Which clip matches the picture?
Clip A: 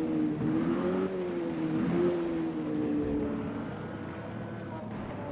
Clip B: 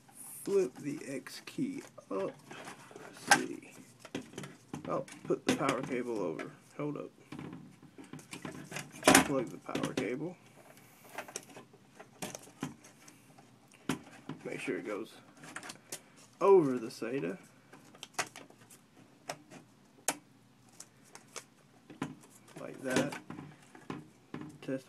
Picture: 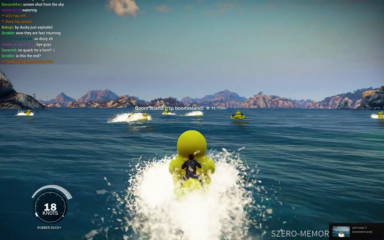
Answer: A